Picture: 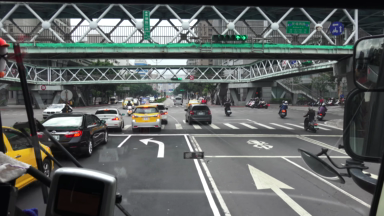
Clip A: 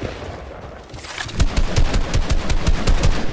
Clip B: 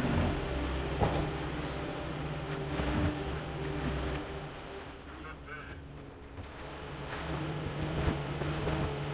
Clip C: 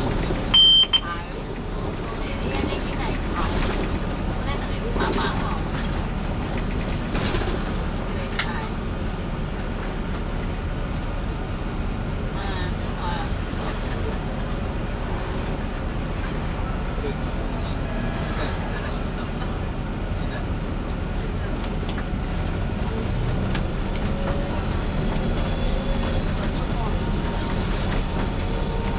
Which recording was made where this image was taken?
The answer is C